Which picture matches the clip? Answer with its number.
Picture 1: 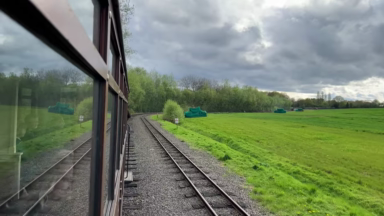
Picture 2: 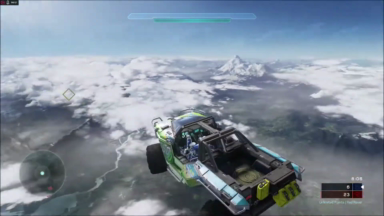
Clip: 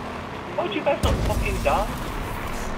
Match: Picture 2